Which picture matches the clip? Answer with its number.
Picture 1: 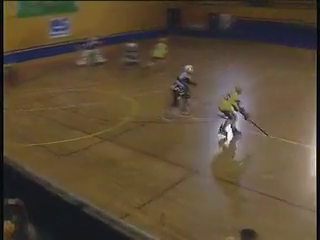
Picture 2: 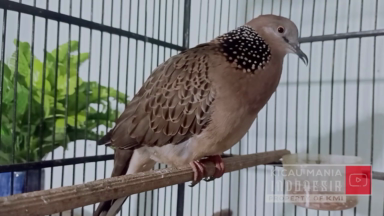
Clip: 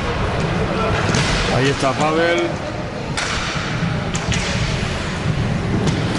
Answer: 1